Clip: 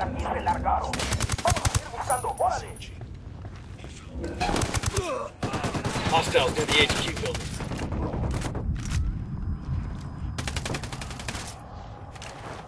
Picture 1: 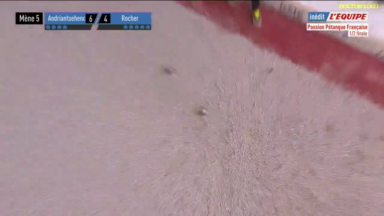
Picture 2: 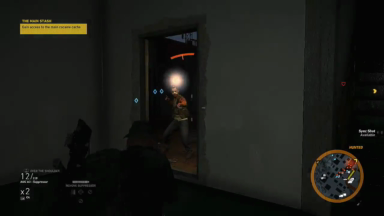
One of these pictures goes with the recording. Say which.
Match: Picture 2